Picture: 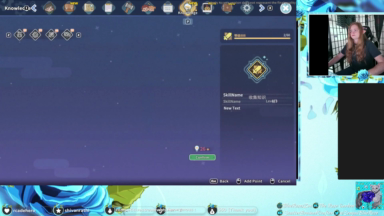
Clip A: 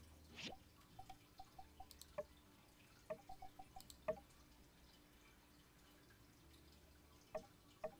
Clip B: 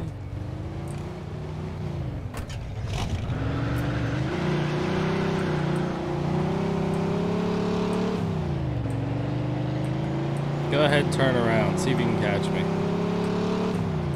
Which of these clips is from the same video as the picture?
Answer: A